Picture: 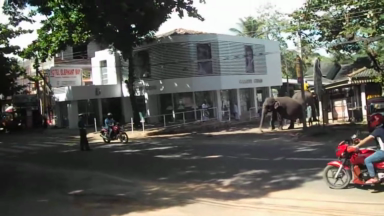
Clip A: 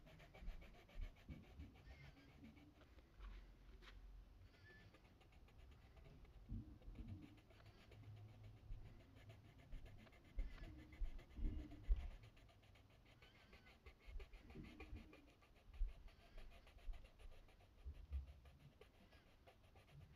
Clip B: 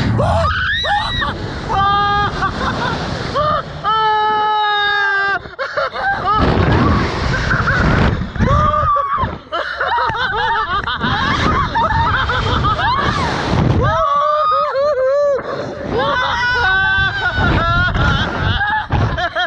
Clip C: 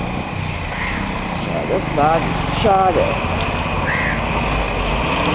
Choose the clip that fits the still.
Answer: C